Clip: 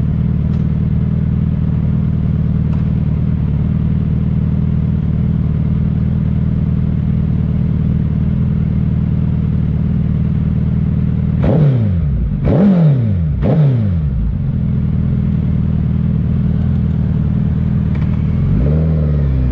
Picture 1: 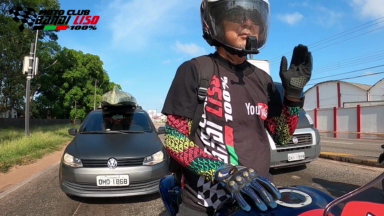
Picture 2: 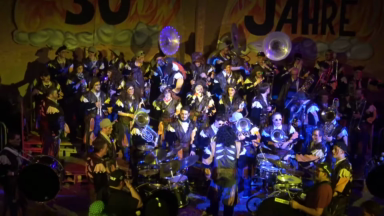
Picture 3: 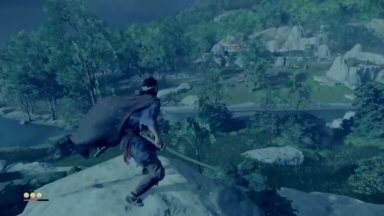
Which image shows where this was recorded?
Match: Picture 1